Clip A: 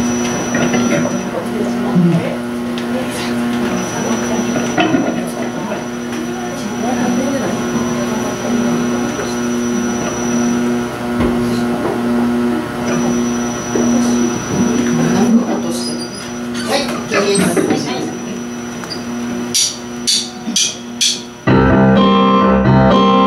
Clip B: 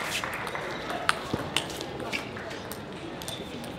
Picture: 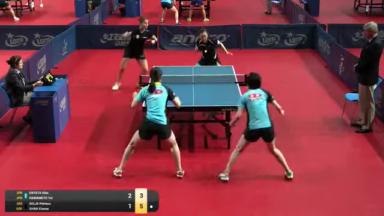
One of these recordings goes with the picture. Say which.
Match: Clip B